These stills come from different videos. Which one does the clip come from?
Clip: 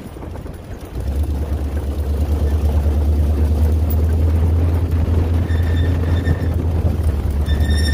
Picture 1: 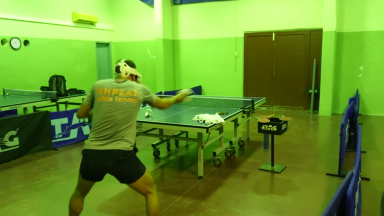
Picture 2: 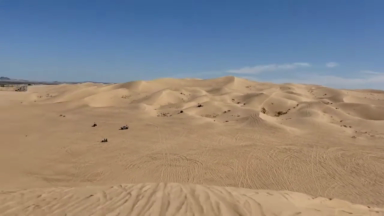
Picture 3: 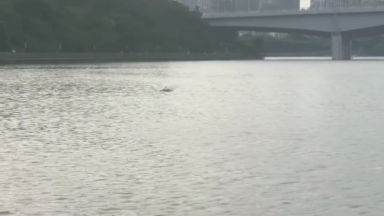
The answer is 2